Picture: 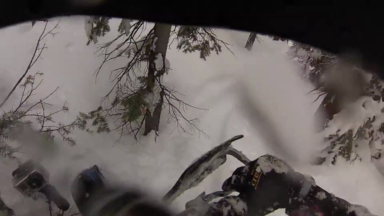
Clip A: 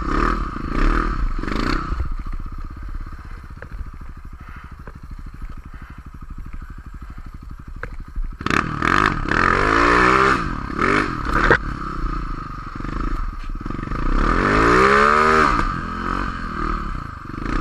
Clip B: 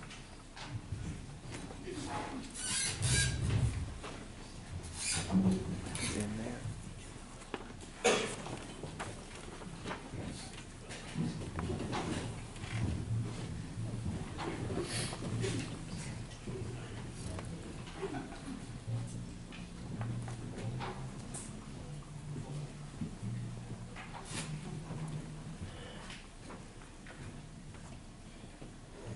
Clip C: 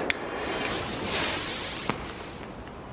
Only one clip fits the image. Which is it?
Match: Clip A